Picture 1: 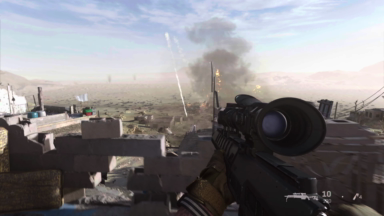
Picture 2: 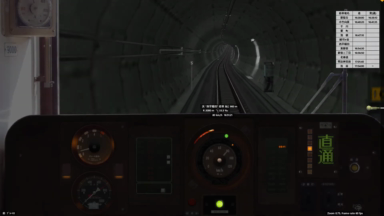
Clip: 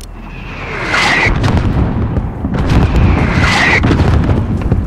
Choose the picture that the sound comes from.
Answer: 1